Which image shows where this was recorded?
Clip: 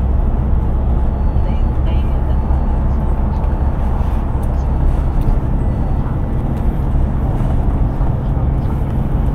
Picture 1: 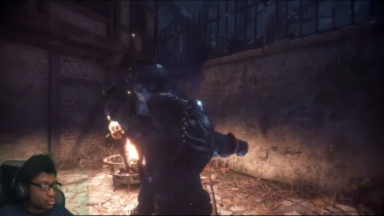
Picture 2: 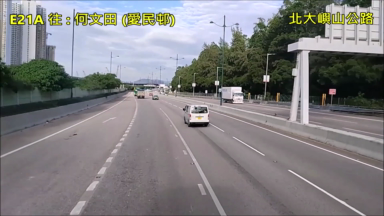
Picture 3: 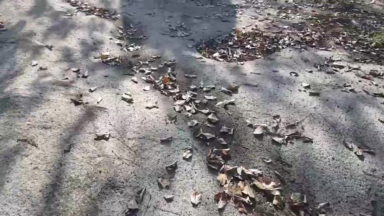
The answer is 2